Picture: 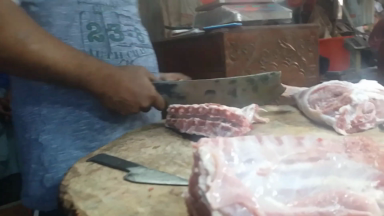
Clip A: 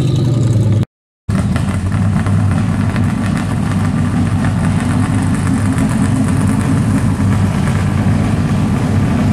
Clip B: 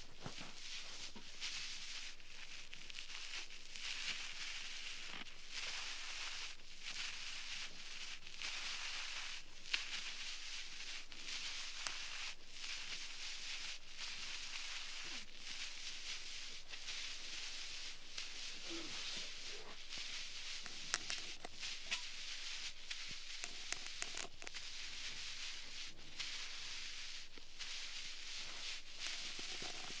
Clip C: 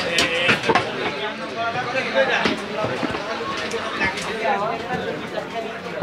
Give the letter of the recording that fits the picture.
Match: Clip C